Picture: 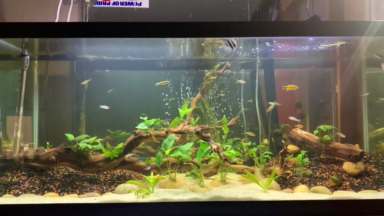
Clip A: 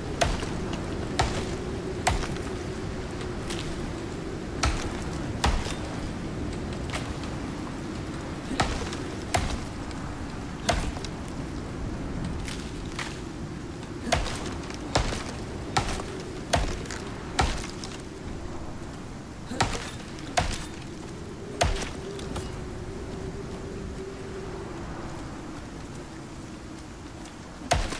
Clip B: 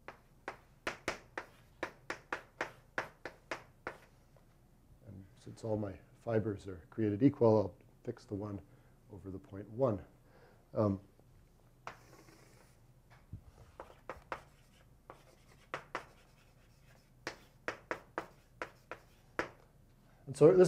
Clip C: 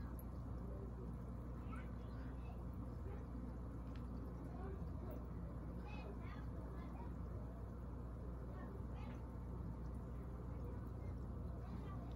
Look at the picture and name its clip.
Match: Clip C